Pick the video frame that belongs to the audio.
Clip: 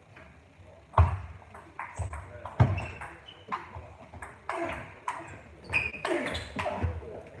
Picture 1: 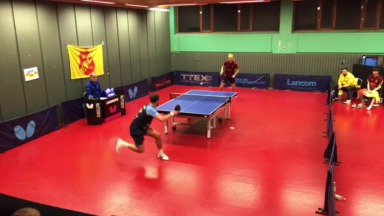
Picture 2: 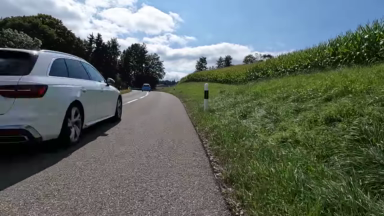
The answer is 1